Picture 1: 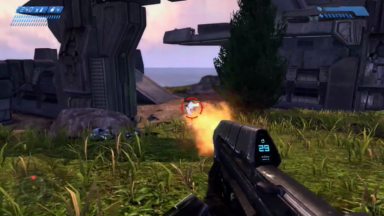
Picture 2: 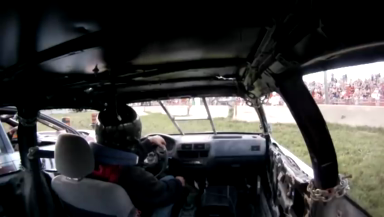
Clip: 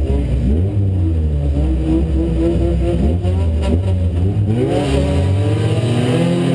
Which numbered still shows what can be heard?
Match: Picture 2